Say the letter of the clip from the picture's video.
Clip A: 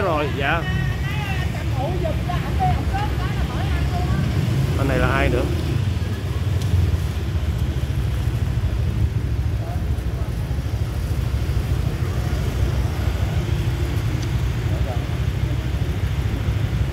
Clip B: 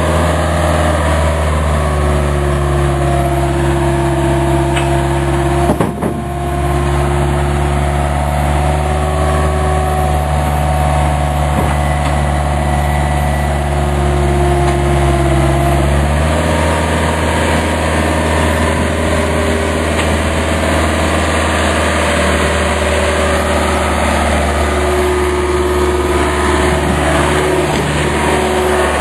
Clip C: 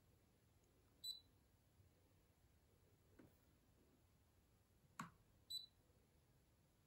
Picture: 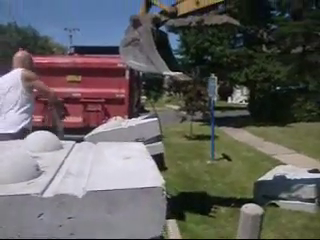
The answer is B